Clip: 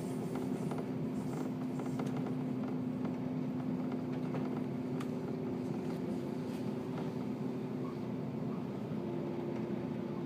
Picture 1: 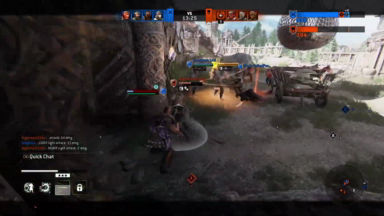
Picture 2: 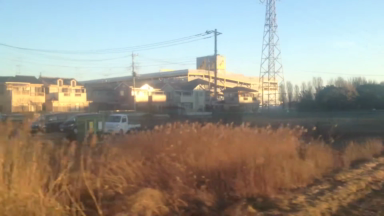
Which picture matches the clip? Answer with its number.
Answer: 2